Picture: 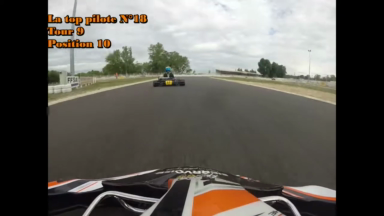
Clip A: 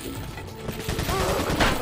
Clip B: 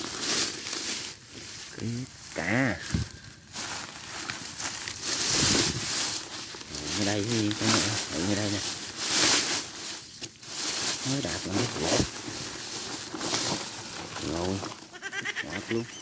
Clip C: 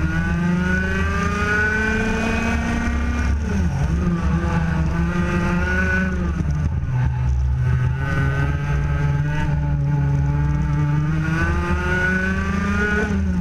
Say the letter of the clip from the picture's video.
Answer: C